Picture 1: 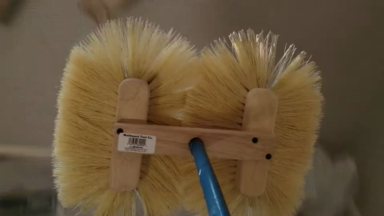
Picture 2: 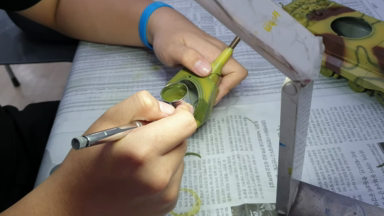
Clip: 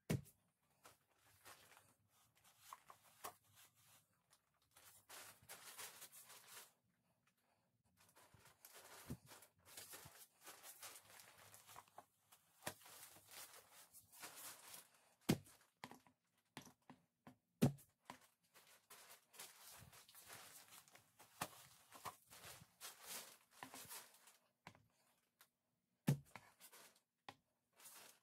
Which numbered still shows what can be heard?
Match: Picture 1